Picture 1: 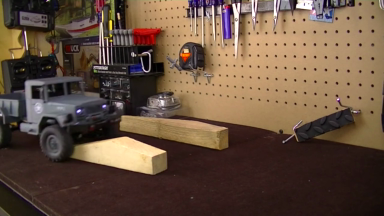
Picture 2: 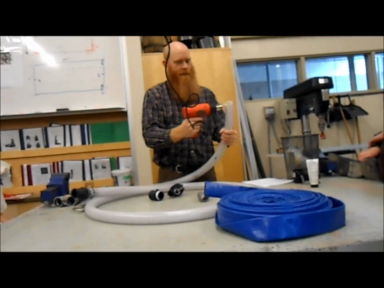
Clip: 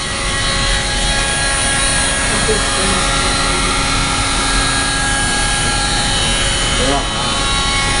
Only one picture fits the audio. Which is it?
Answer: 2